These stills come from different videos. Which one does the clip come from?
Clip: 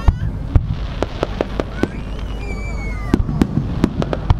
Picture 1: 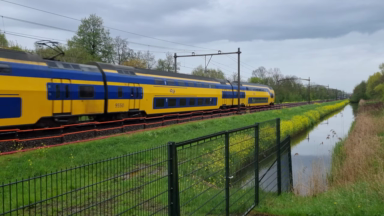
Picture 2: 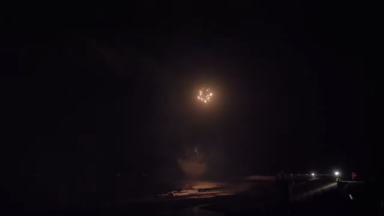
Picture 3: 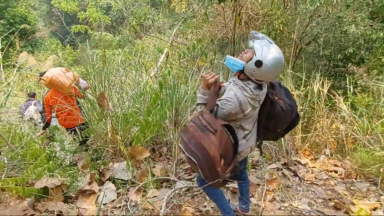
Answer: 2